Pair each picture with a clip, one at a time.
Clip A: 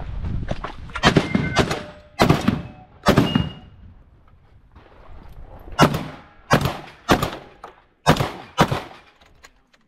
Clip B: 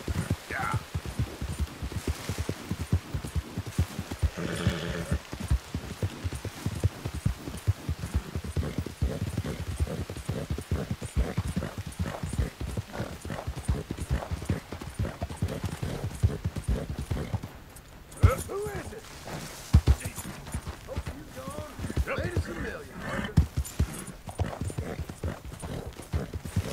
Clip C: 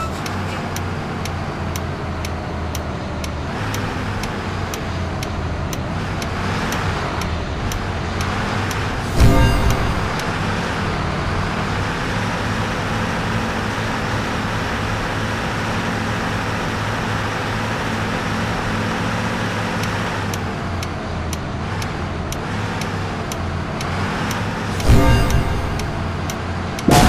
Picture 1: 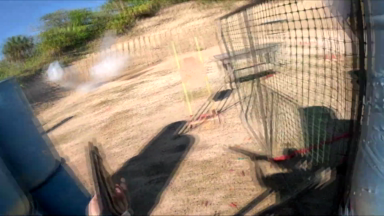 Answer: A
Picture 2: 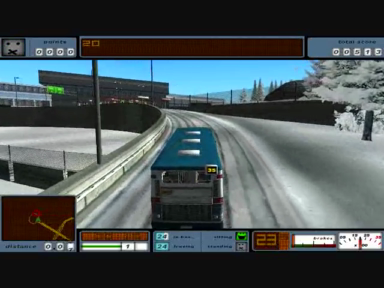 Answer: C